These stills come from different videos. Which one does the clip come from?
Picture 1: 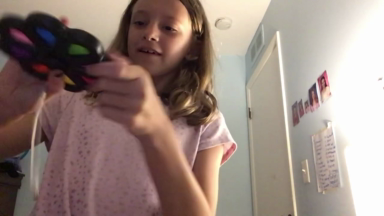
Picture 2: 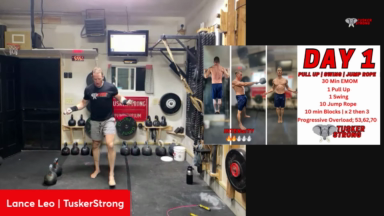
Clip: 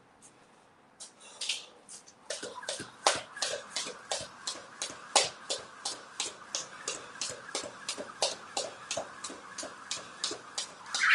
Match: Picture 2